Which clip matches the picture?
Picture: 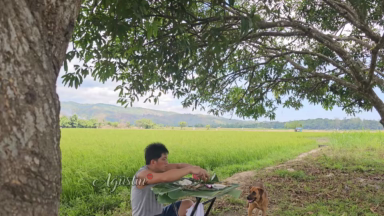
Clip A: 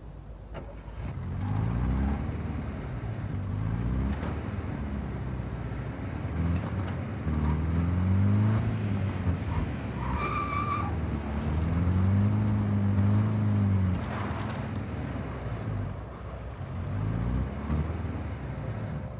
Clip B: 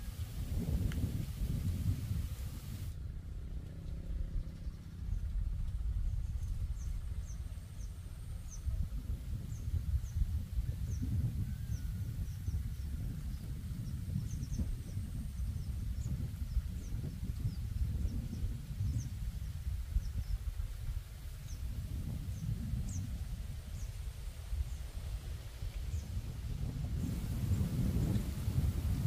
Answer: B